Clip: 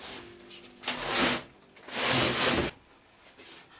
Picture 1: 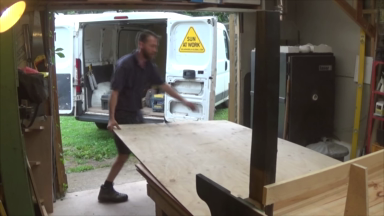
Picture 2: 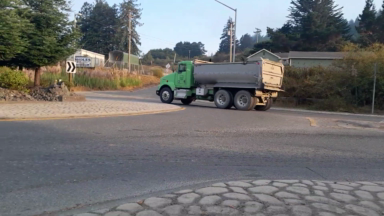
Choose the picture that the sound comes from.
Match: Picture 1